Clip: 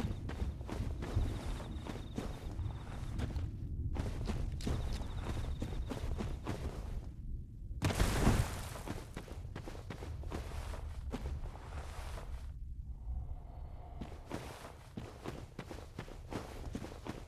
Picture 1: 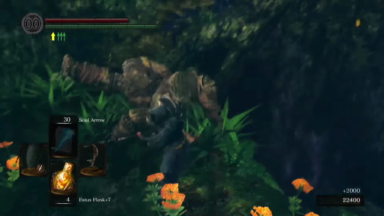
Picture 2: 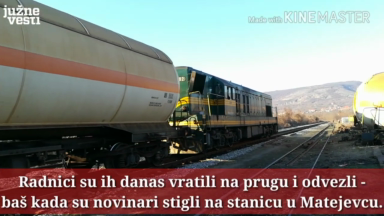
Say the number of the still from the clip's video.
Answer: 1